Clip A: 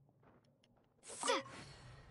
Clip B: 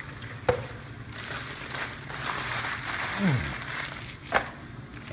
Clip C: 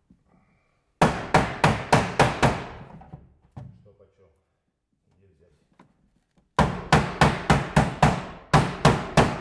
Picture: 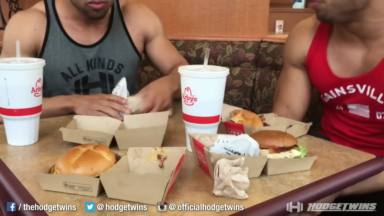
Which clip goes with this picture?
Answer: B